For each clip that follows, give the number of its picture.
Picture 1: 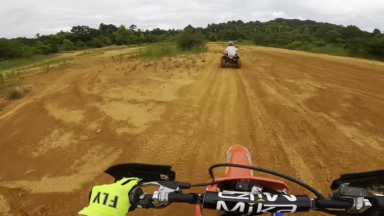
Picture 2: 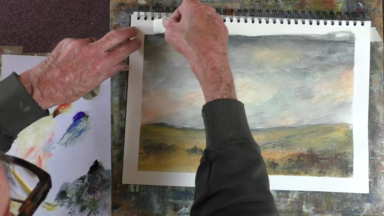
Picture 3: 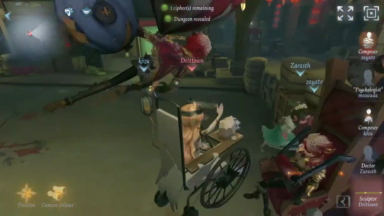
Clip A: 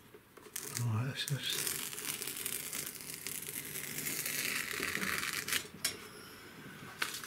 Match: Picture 2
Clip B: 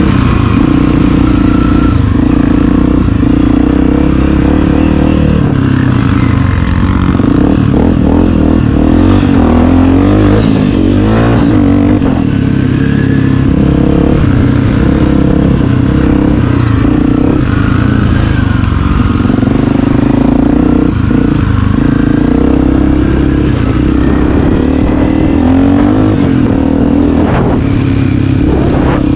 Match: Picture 1